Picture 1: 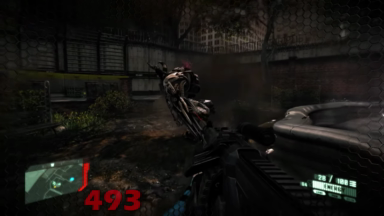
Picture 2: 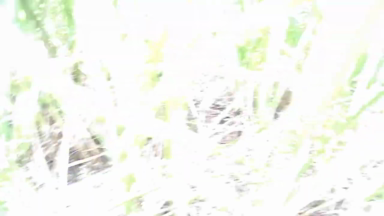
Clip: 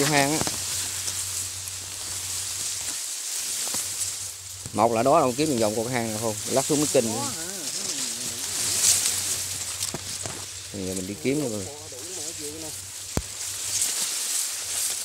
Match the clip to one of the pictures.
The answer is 2